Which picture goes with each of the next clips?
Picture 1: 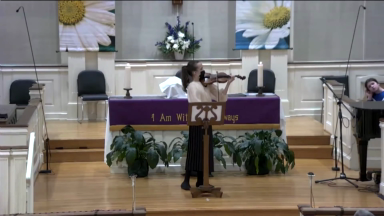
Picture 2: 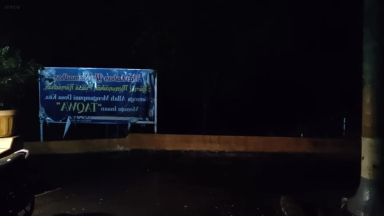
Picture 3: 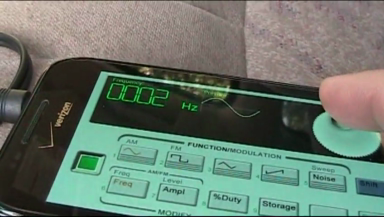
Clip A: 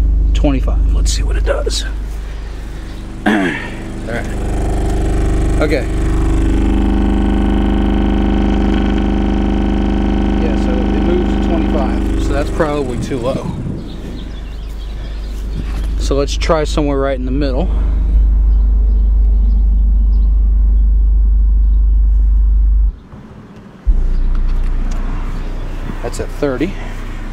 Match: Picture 3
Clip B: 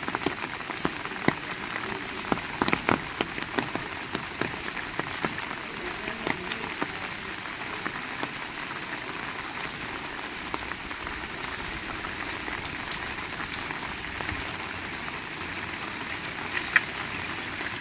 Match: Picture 2